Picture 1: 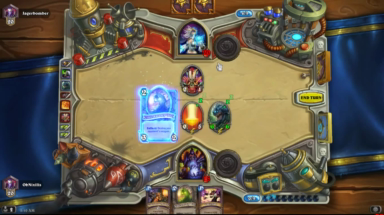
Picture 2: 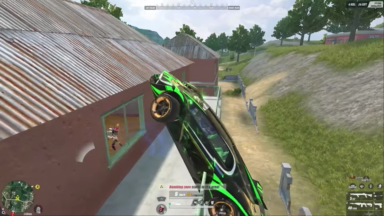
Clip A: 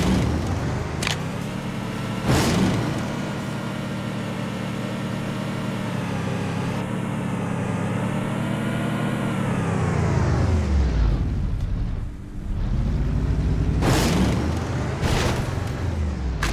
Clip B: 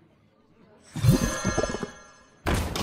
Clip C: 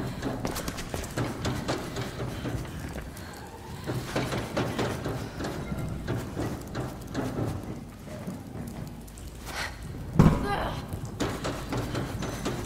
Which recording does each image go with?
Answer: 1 B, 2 A